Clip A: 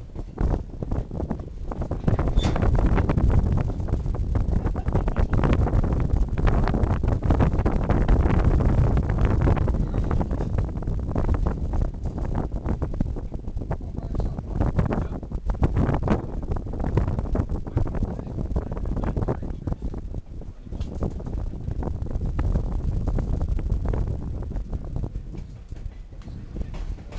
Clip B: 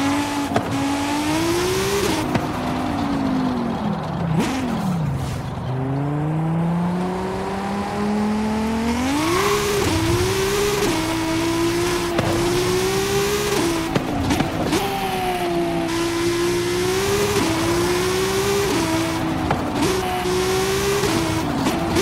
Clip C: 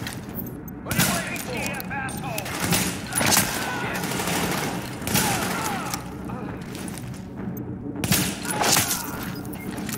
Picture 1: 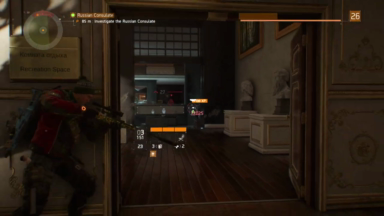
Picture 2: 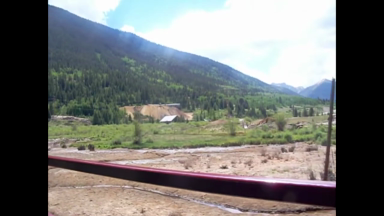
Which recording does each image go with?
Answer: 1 C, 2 A